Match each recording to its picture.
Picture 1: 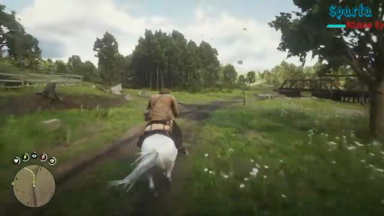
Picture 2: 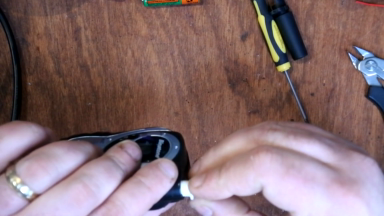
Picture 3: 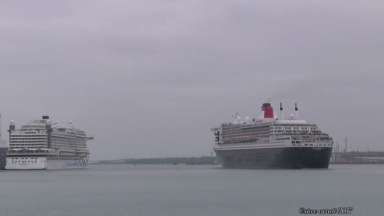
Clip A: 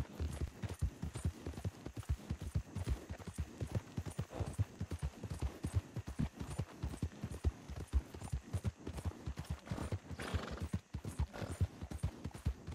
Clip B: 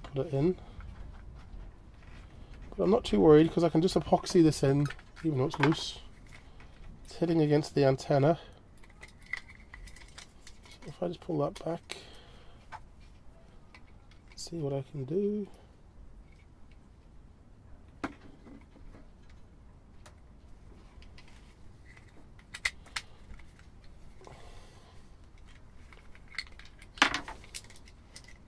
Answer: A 1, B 2